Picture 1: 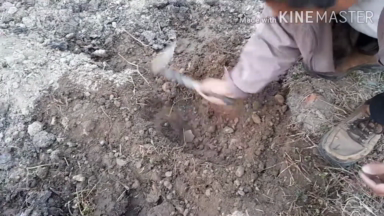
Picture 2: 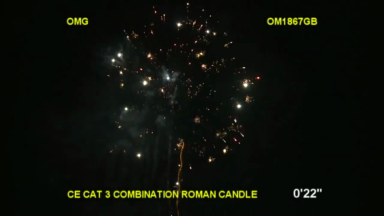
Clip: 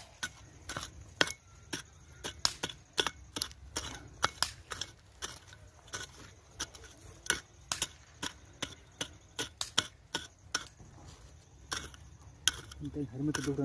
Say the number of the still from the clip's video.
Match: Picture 1